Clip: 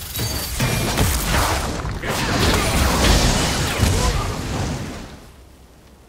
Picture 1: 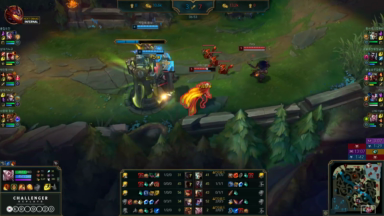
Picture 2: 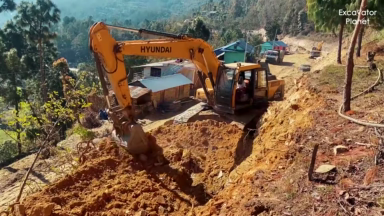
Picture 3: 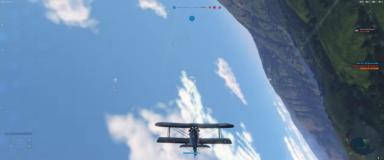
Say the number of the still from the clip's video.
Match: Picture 1